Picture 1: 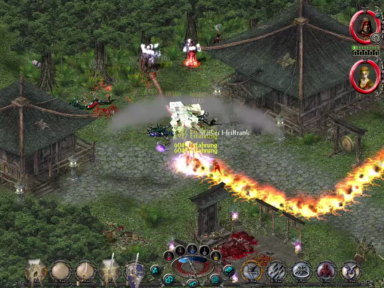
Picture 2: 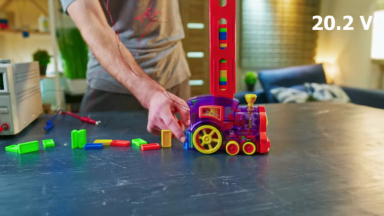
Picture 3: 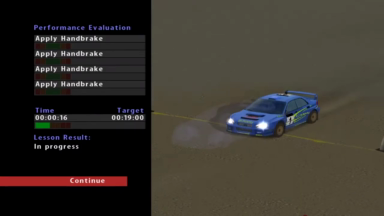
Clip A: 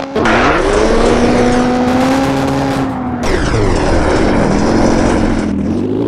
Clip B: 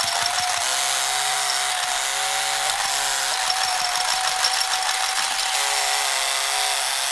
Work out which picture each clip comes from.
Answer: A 3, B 2